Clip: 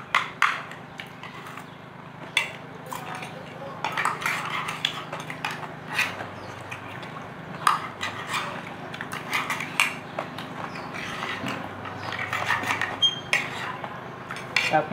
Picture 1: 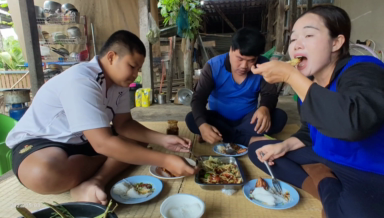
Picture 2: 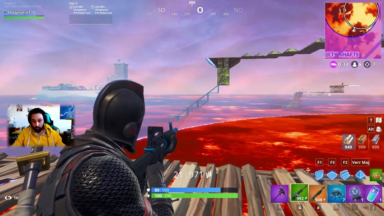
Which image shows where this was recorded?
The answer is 1